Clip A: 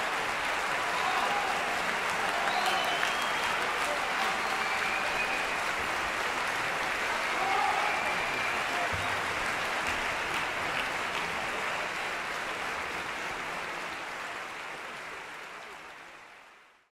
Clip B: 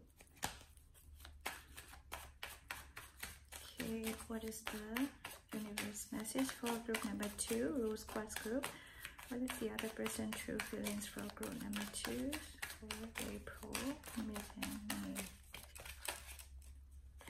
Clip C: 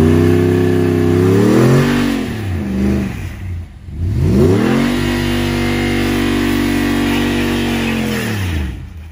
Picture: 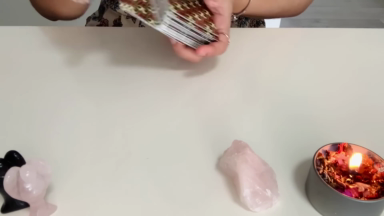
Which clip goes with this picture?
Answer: B